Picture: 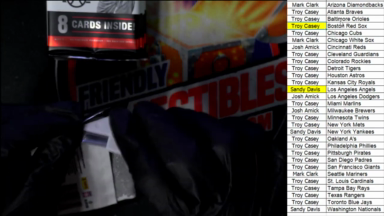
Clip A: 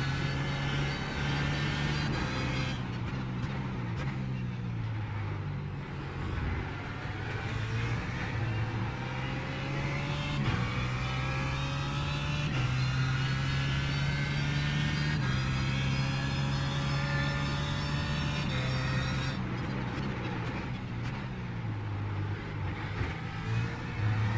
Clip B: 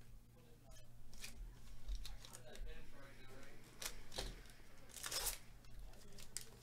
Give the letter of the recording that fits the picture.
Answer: B